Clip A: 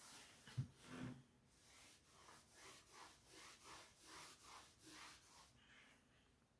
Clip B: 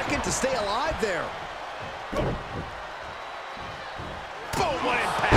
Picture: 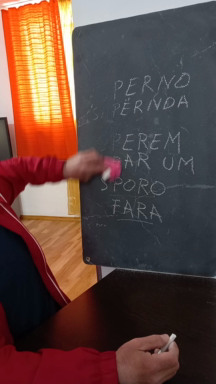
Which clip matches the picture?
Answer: A